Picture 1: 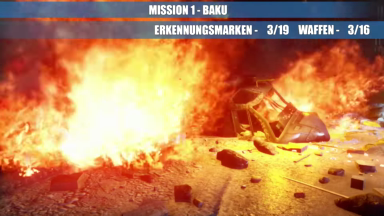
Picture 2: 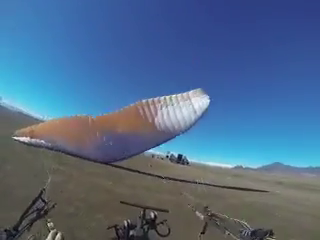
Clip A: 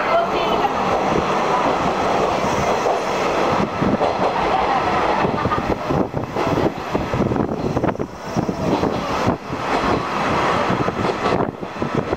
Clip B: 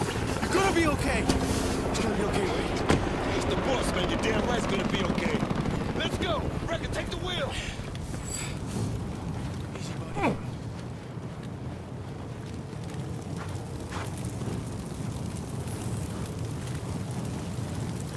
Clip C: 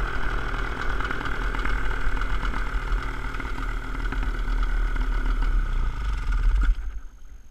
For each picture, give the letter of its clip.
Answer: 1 B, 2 C